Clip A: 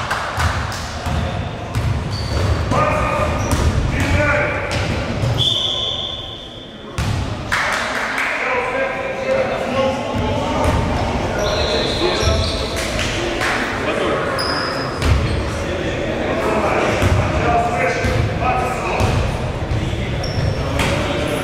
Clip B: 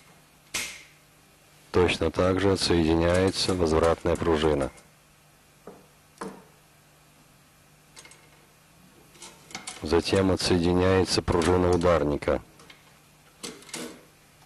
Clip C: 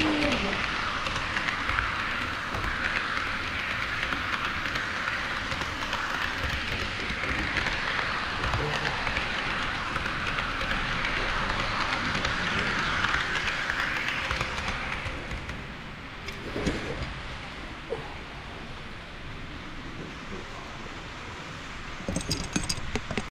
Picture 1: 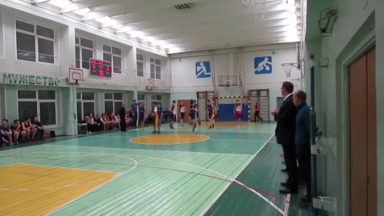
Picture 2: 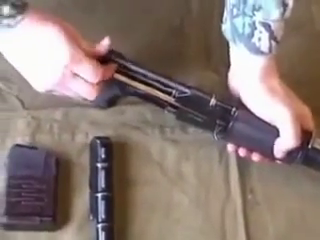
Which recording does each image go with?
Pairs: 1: A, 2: B